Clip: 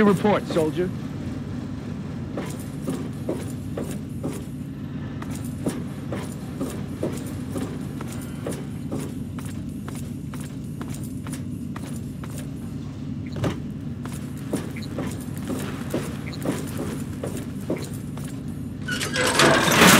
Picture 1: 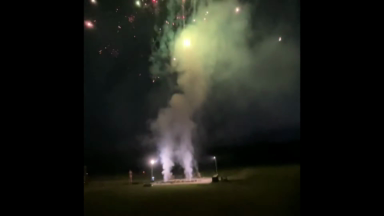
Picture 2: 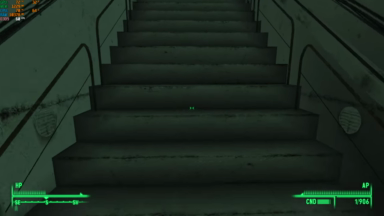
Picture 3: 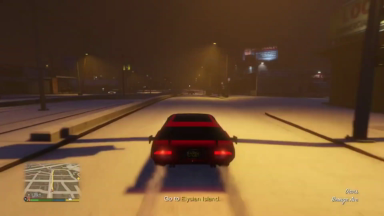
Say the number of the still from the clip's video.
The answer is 2